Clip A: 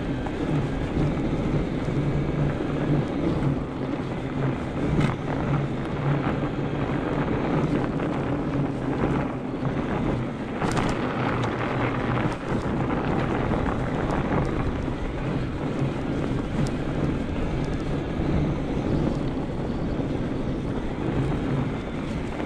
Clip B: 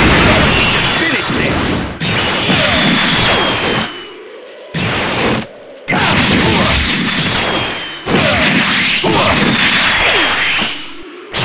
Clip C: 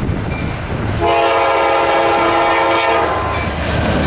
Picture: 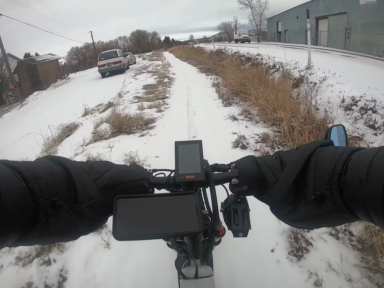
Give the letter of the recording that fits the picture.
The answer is A